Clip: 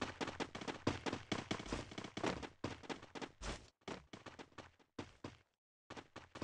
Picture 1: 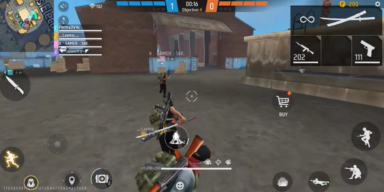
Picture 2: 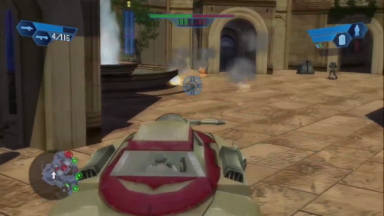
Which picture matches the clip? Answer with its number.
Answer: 1